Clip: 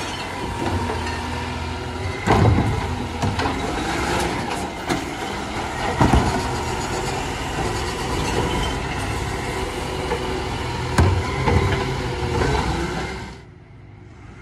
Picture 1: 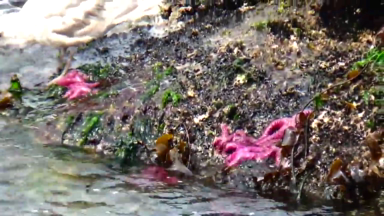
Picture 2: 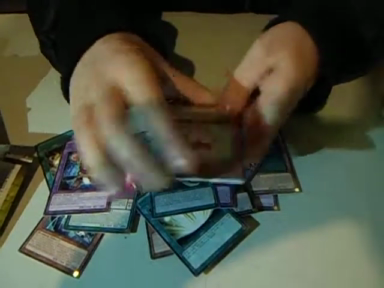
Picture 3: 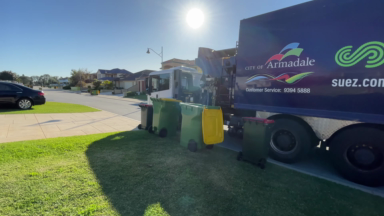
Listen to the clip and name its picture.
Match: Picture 3